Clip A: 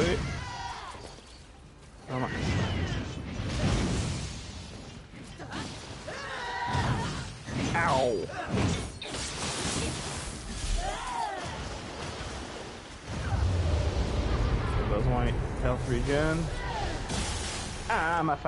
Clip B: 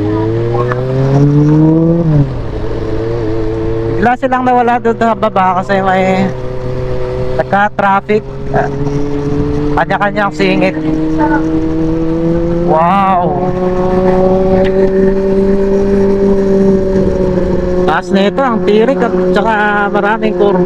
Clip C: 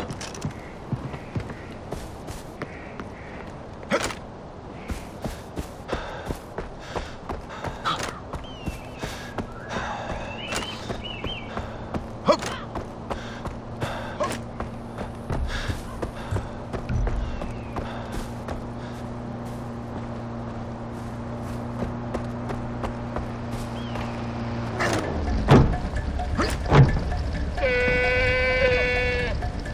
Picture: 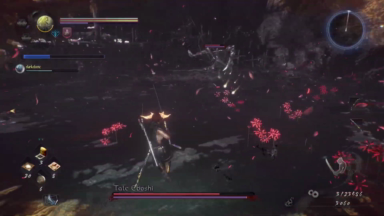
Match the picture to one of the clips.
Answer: A